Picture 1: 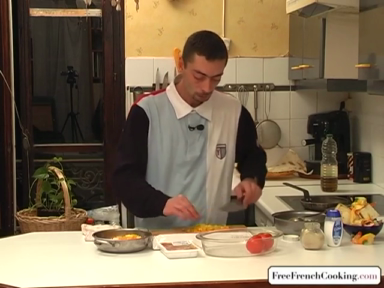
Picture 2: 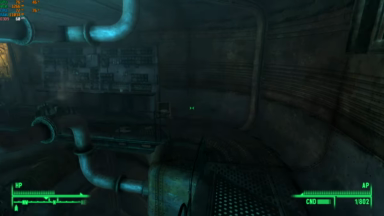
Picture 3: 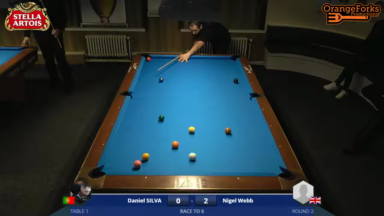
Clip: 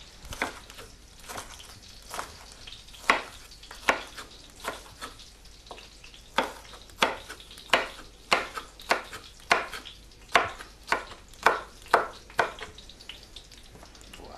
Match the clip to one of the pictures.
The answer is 1